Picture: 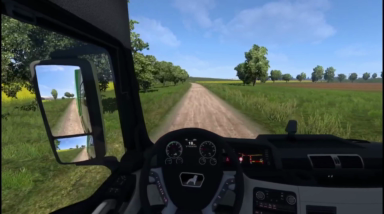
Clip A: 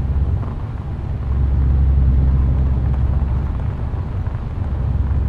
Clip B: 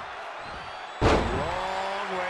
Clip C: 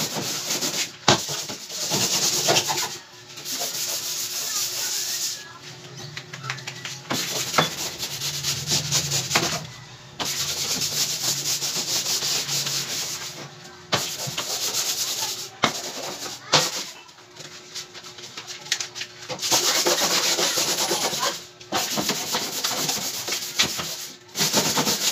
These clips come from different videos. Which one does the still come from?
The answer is A